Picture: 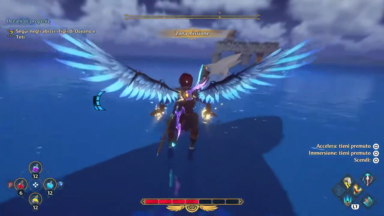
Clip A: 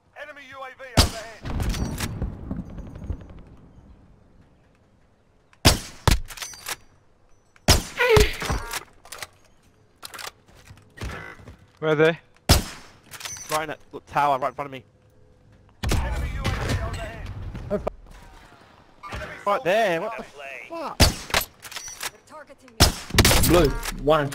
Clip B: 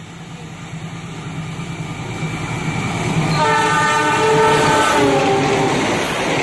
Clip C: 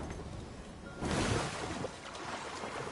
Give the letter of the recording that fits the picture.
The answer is C